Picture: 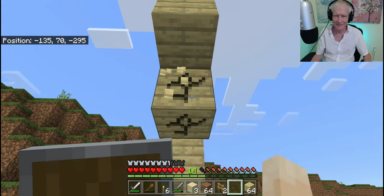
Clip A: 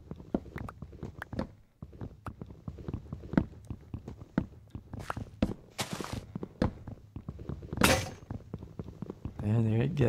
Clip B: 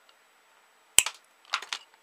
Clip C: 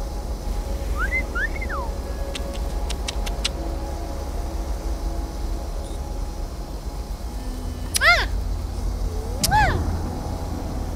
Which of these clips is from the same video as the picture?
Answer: A